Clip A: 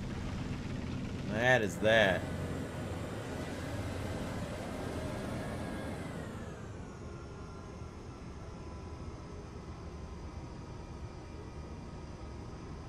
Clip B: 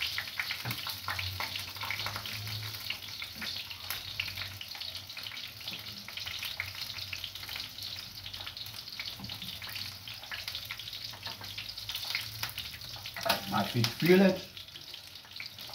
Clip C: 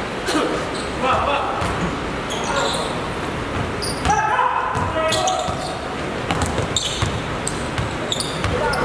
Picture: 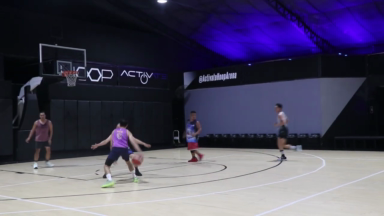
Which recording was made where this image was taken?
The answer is C